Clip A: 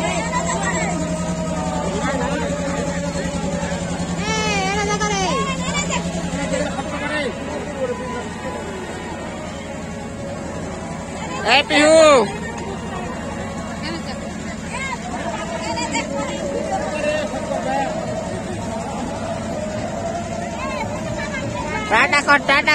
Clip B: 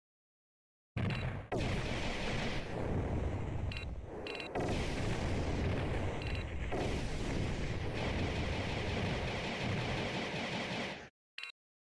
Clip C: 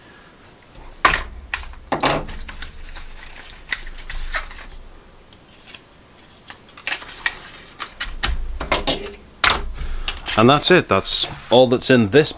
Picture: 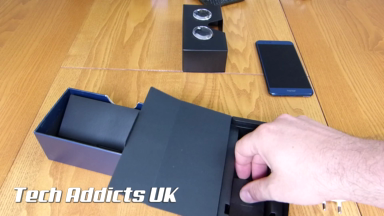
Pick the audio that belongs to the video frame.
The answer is C